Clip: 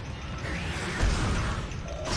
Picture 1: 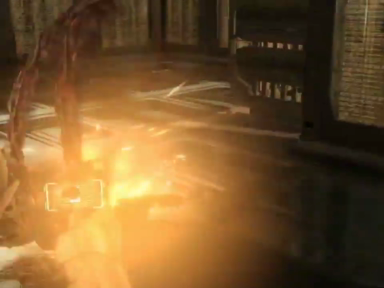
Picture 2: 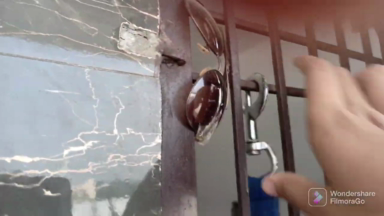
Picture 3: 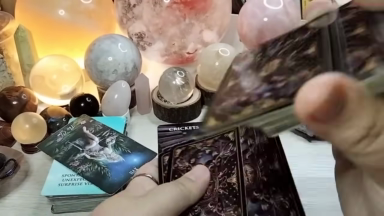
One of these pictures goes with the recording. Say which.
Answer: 1